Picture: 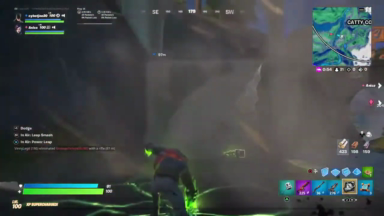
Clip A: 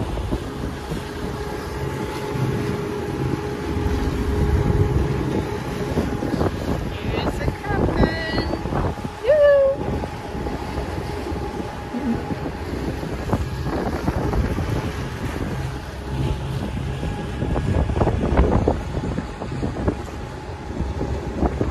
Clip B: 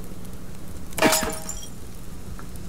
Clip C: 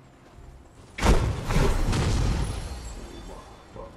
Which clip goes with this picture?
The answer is C